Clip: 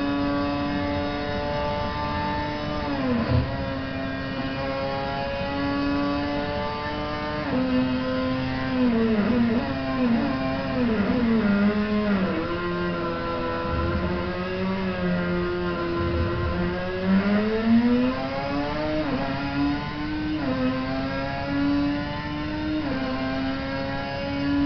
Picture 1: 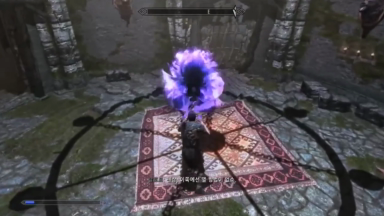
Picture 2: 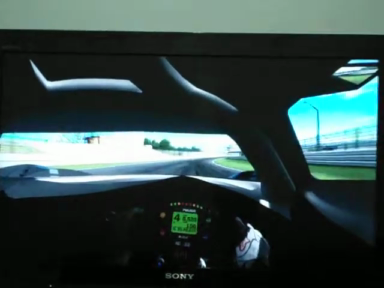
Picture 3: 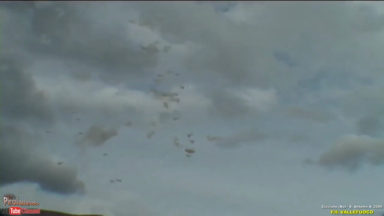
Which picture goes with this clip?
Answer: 2